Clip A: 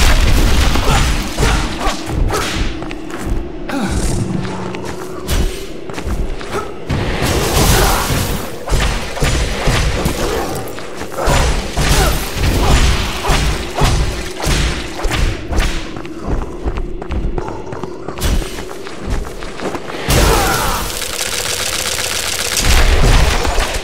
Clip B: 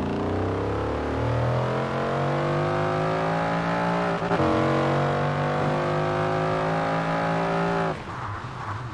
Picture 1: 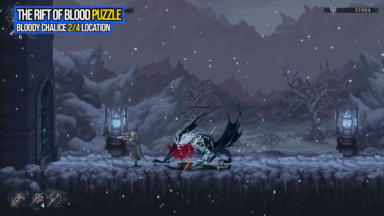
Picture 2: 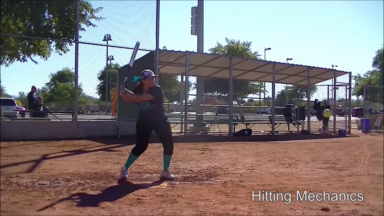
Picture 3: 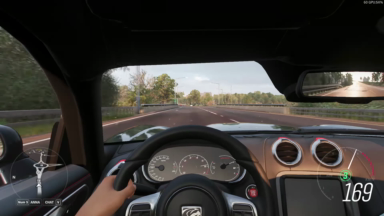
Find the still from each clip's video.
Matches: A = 1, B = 3